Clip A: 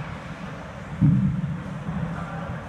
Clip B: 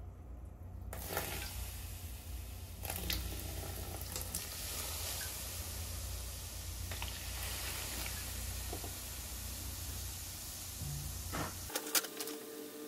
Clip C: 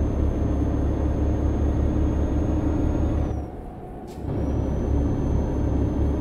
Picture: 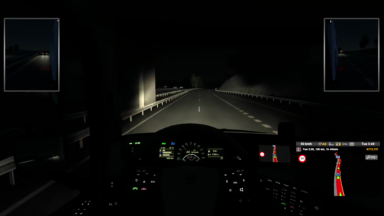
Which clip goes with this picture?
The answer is C